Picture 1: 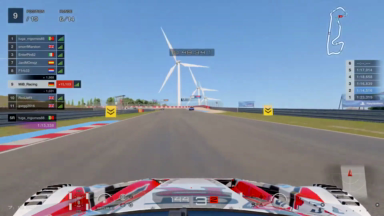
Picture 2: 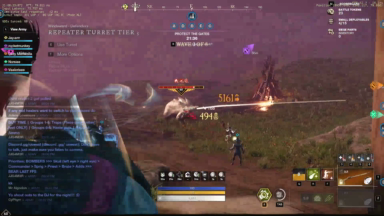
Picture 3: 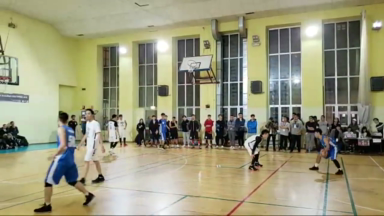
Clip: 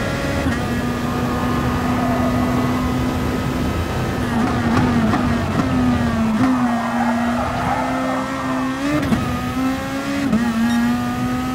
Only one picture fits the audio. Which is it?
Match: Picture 1